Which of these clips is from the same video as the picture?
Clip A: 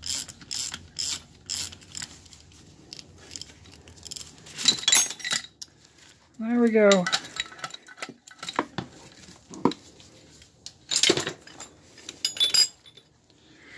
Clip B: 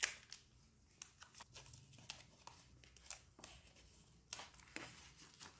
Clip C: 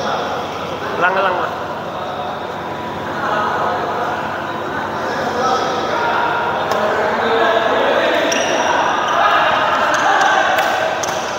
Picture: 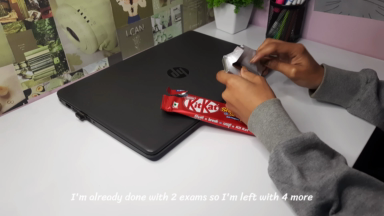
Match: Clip B